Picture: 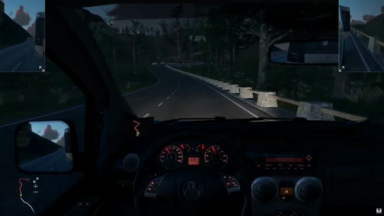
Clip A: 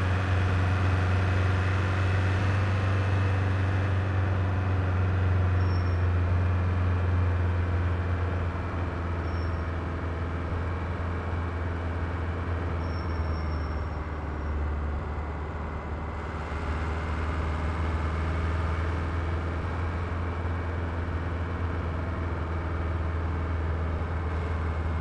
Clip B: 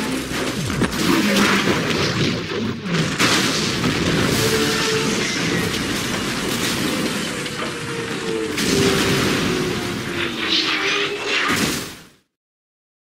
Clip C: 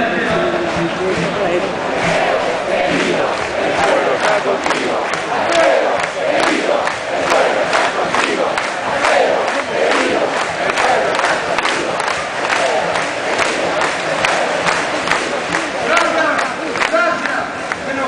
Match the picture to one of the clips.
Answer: A